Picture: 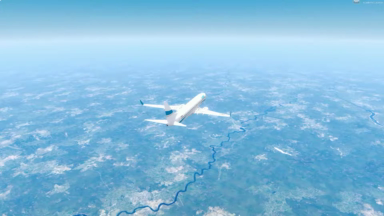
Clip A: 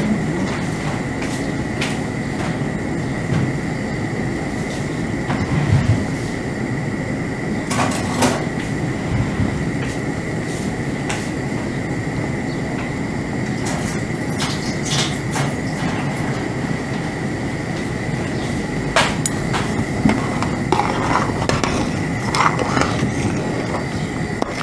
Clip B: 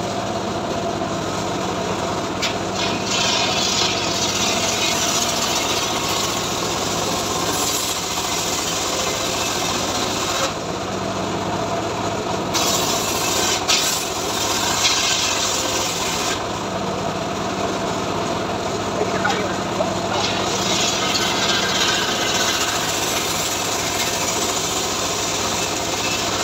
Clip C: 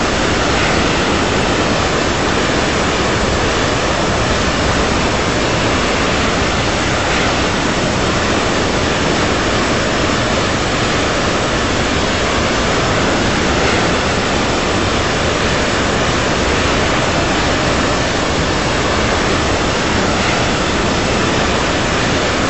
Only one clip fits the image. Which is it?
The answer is C